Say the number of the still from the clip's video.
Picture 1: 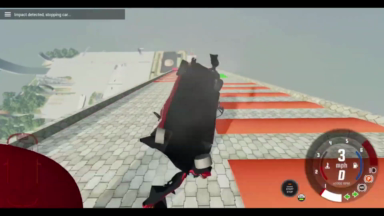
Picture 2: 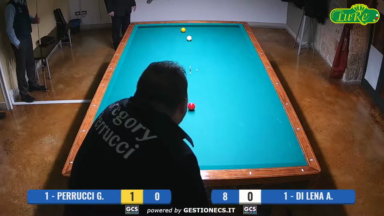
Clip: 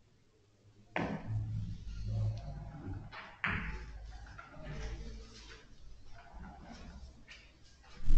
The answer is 2